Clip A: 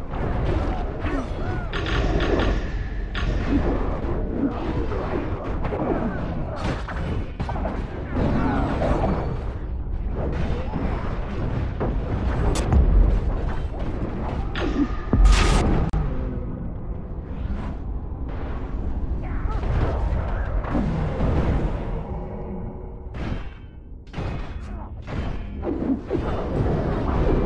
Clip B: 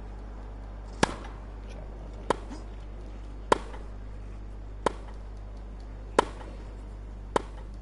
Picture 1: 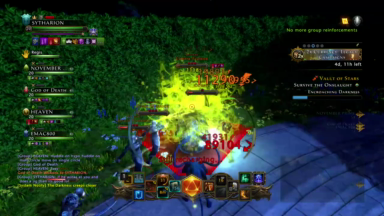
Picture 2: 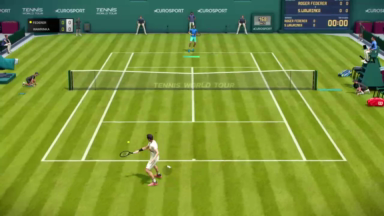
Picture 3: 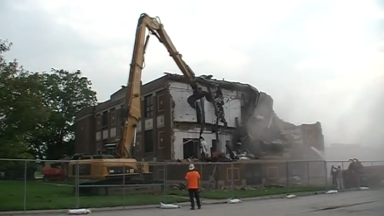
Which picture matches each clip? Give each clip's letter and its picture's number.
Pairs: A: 1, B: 2